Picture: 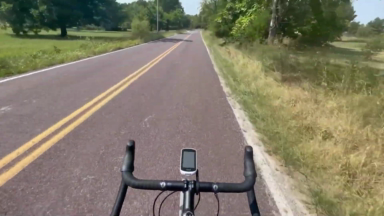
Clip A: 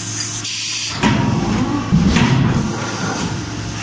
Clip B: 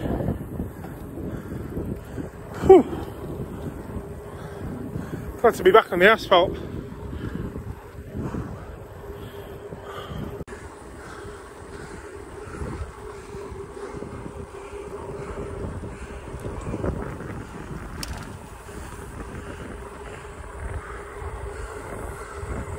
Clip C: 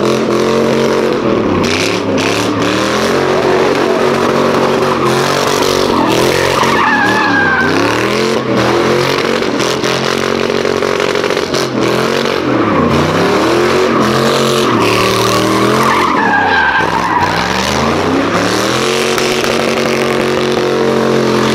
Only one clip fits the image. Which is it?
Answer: B